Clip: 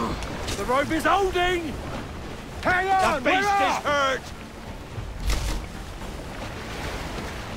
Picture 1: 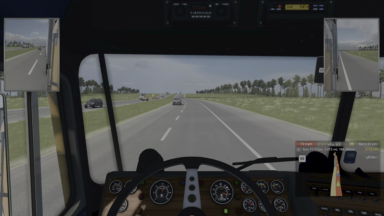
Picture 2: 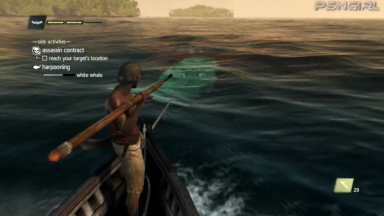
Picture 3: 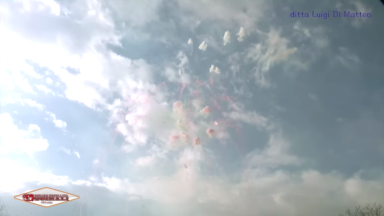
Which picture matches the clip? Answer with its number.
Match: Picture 2